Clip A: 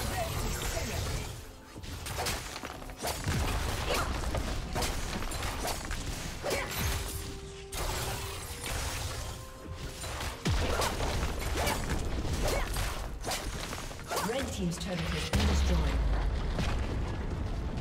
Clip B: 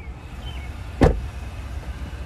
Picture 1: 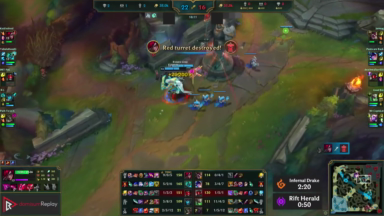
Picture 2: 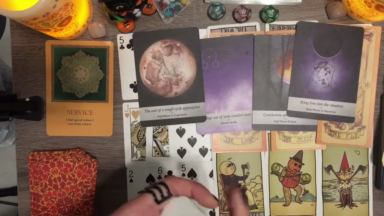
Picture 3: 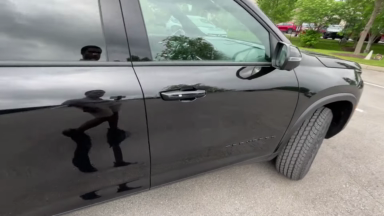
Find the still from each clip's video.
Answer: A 1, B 3